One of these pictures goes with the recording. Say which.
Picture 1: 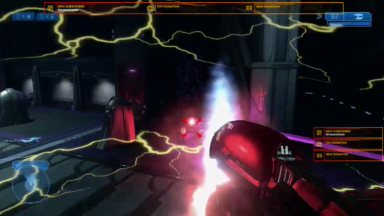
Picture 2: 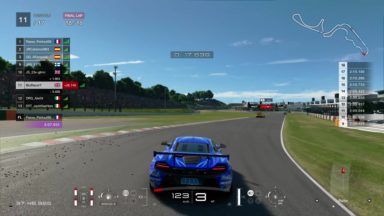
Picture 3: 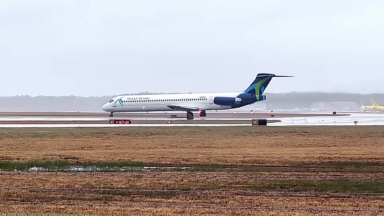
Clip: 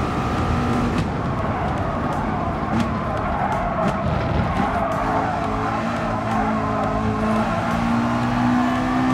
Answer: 2